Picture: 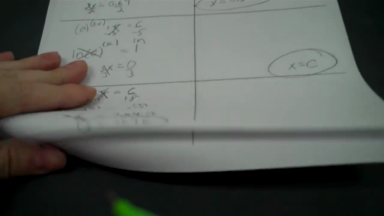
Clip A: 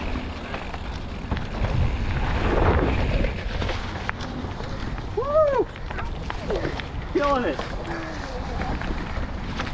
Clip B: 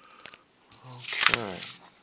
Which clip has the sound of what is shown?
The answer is B